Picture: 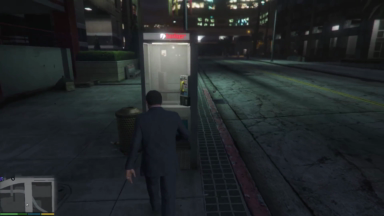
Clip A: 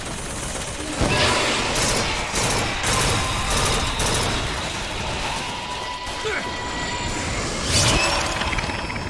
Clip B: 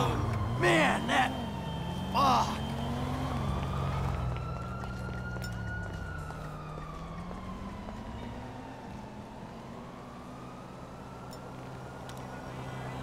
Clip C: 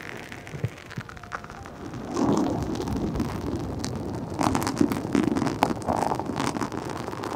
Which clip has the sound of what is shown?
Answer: B